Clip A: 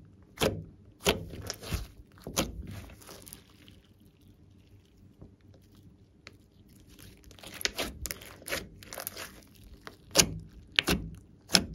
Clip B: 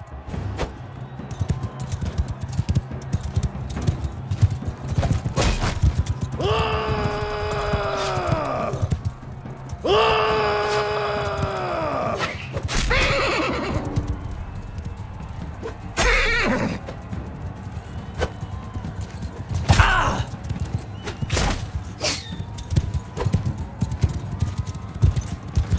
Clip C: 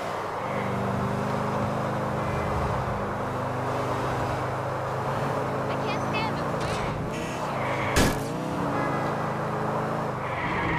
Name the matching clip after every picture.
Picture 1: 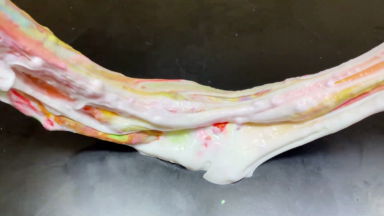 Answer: A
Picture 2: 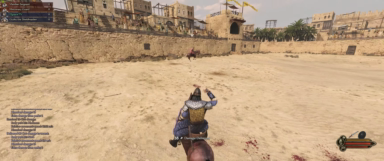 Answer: B